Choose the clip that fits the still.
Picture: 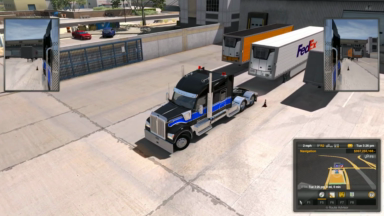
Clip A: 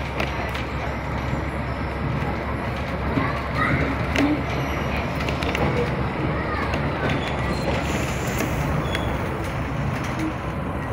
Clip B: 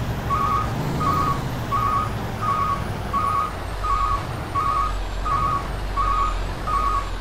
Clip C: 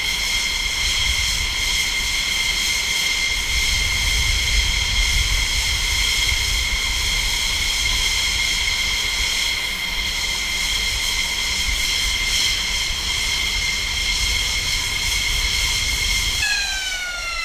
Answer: B